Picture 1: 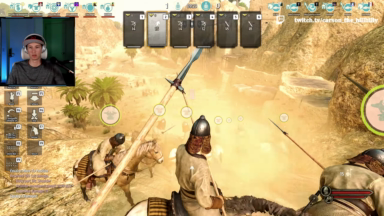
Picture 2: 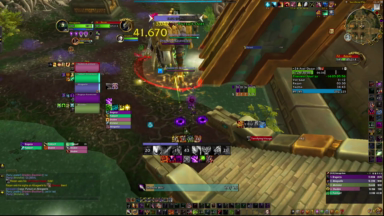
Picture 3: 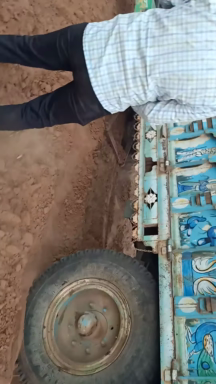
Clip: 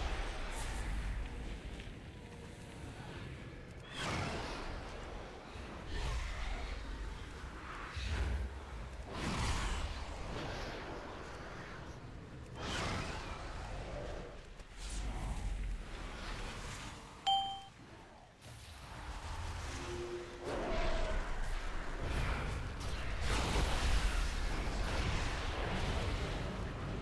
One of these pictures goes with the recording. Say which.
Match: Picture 2